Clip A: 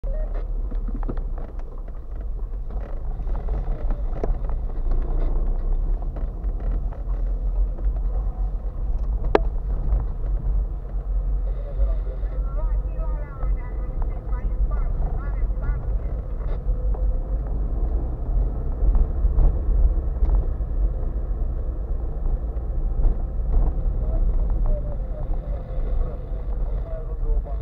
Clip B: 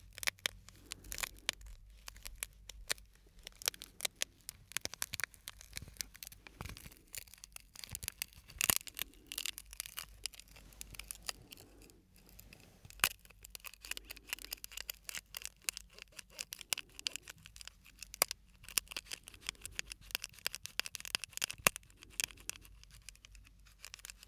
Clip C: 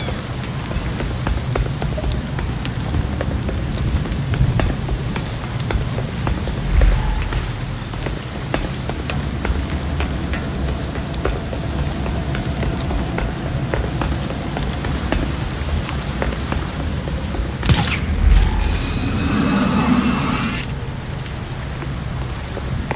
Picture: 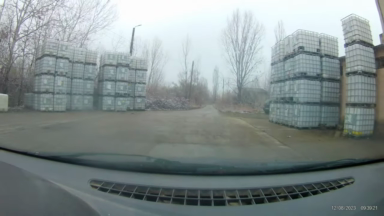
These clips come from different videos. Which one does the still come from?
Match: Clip A